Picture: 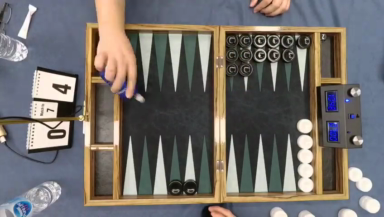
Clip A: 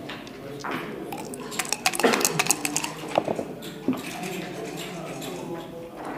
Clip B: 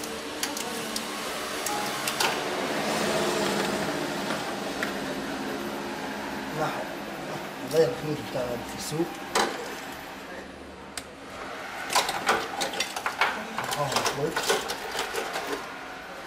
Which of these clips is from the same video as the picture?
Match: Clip A